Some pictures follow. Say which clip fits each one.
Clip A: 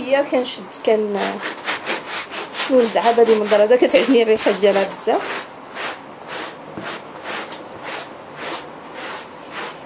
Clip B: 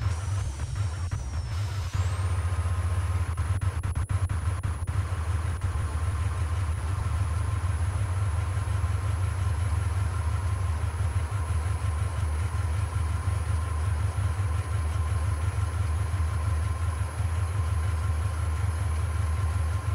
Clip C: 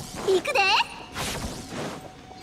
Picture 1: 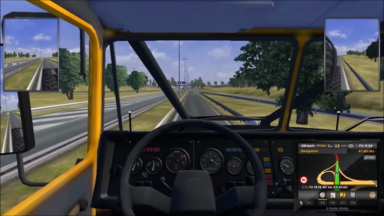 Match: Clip B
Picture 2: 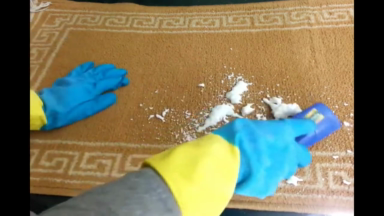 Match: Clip A